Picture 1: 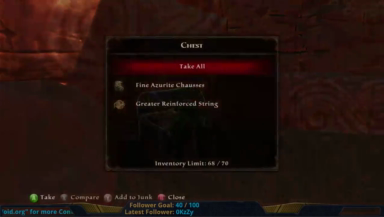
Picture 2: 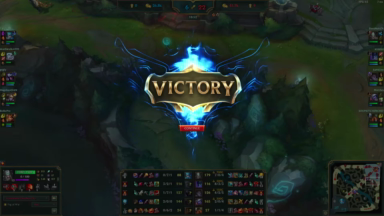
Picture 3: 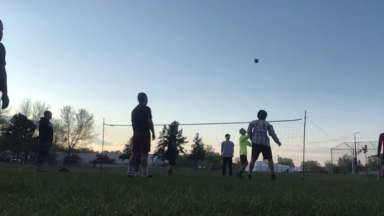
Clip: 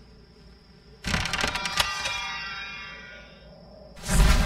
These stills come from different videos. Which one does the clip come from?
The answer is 1